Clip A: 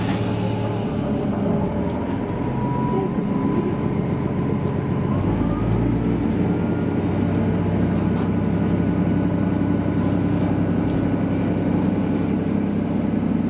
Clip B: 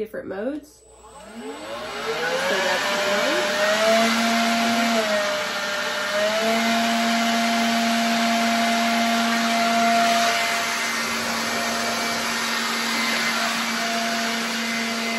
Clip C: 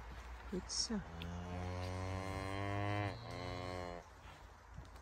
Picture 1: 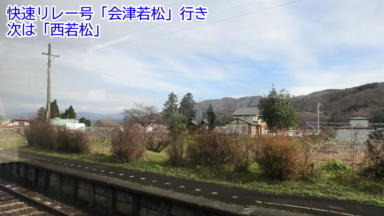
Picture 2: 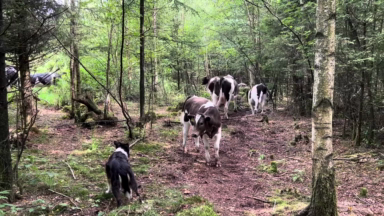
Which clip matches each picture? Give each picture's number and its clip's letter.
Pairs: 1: A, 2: C